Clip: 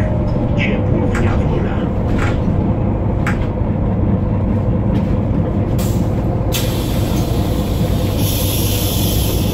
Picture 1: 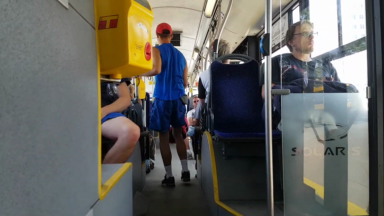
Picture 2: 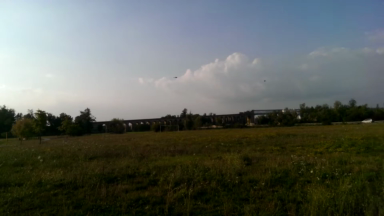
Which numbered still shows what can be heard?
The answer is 1